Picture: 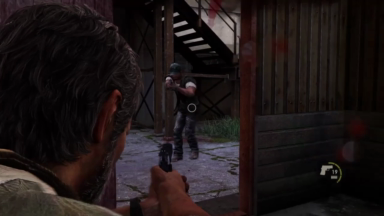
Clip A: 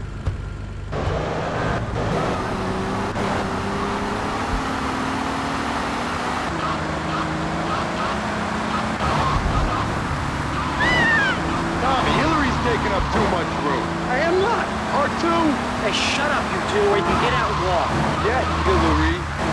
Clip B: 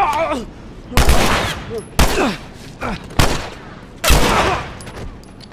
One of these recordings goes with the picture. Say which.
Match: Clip B